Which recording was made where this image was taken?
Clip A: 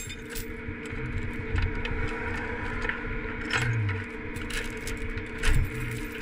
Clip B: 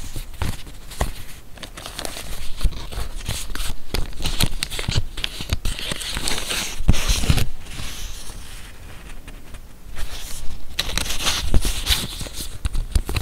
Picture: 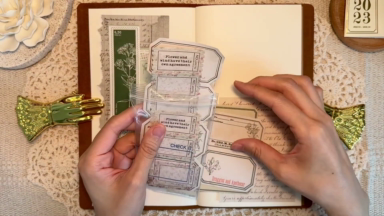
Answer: B